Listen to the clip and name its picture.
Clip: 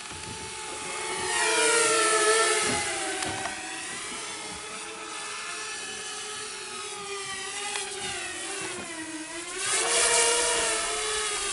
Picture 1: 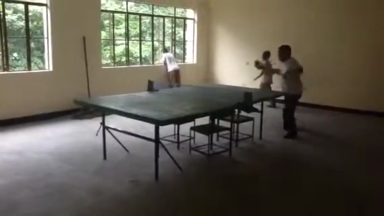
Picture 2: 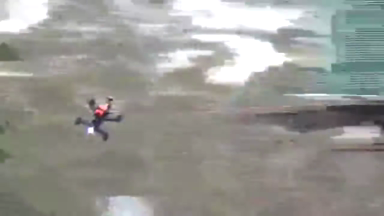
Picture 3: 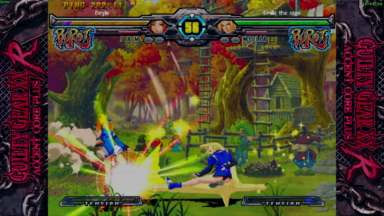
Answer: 2